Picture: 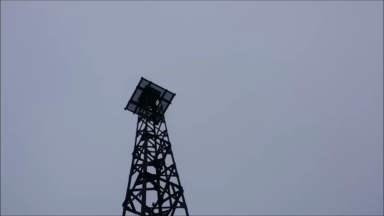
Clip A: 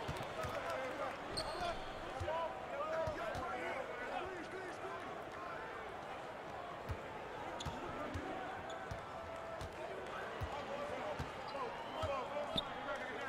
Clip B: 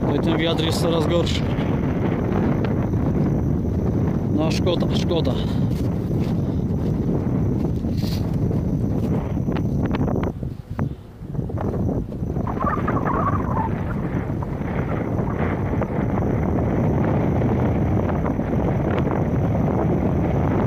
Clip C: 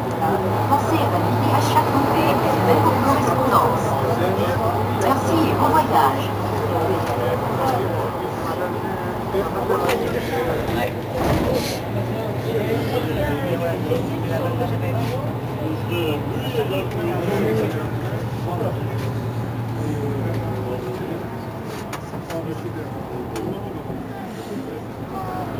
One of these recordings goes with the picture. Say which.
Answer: B